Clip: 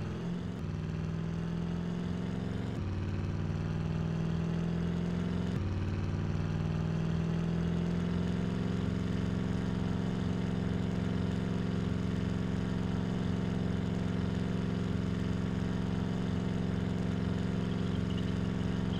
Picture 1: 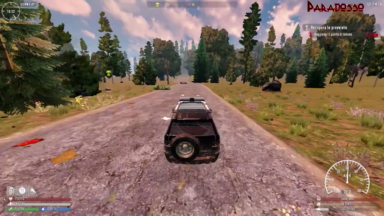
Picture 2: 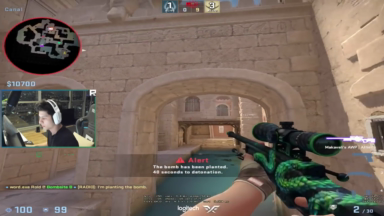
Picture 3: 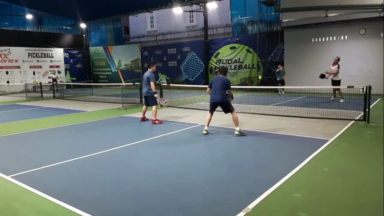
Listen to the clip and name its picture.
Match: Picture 1